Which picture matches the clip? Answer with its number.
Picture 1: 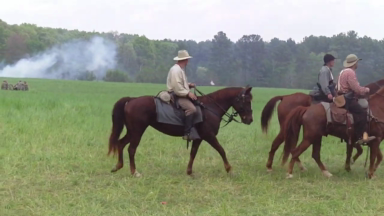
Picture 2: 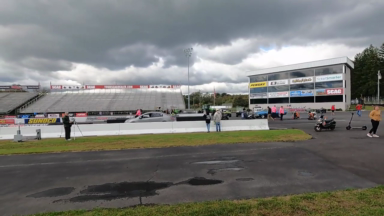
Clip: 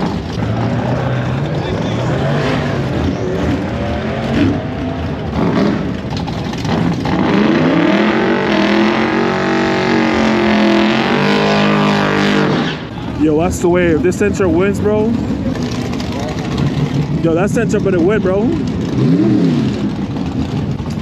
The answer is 2